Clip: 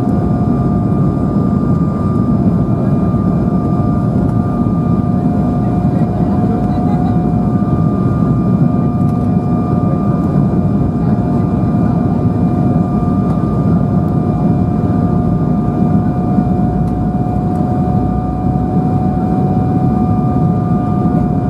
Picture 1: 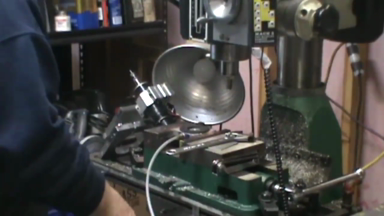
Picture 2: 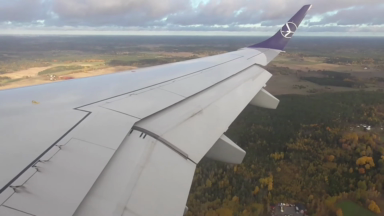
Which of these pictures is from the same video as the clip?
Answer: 2